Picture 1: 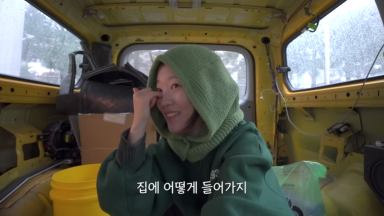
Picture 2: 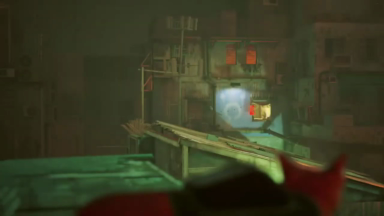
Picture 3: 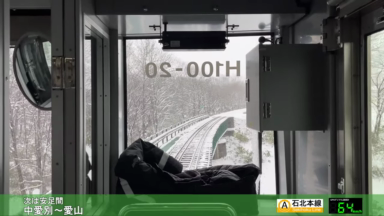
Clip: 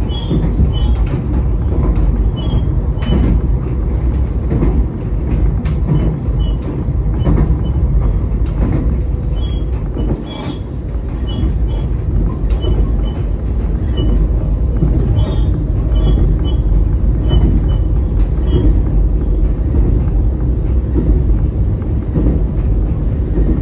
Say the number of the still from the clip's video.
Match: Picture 3